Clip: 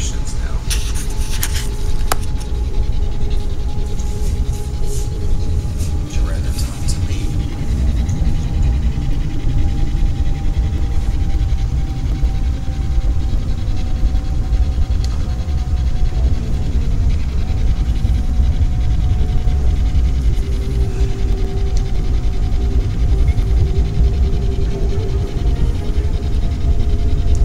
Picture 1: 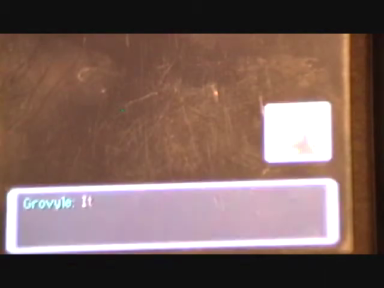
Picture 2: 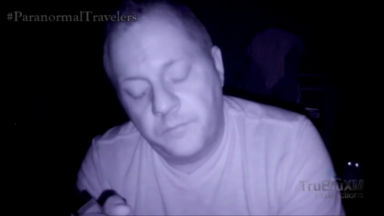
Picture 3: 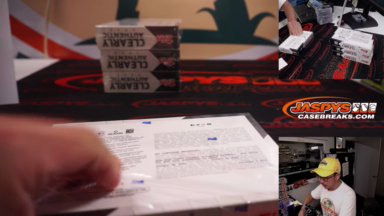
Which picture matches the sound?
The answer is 2